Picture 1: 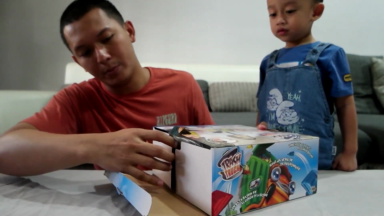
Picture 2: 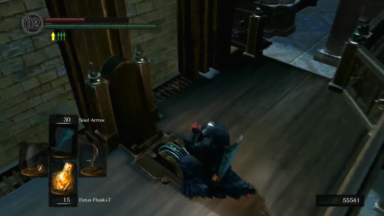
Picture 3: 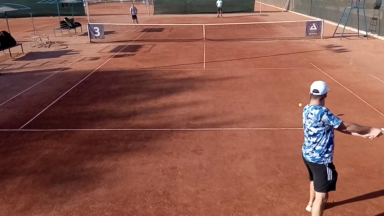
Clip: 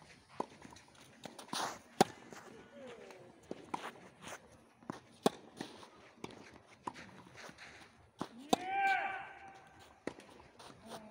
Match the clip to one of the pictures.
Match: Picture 3